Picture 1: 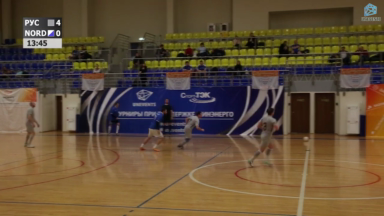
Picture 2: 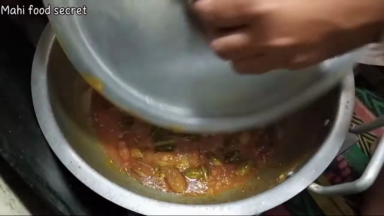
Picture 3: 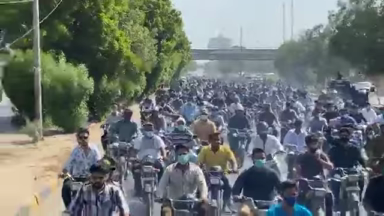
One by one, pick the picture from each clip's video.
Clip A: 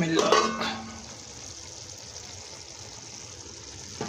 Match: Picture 2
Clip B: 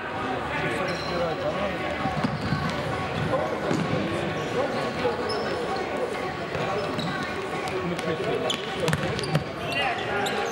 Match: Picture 1